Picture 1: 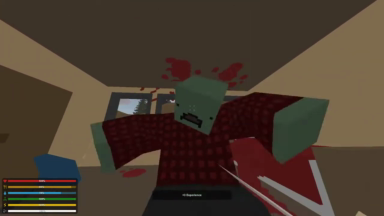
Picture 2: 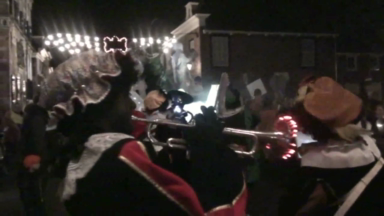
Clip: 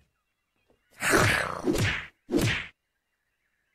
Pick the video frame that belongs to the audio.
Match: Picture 1